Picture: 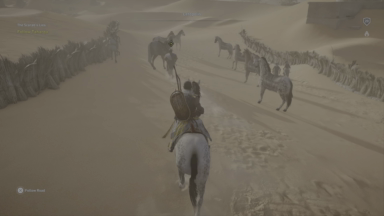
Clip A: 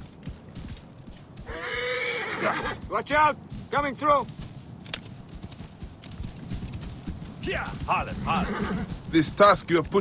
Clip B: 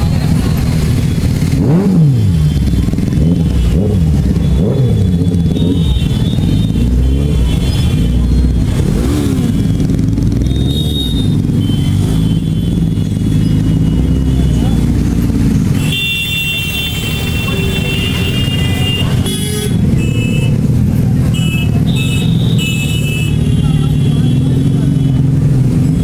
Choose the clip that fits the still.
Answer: A